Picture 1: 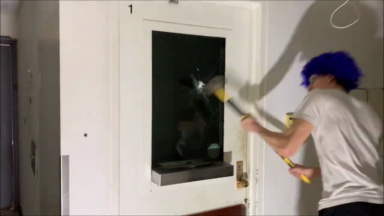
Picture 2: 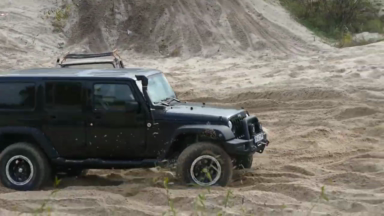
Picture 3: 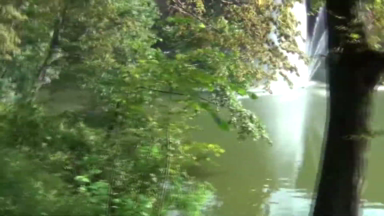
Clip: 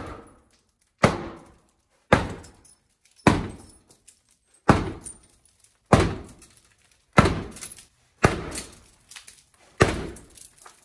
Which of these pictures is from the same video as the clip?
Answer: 1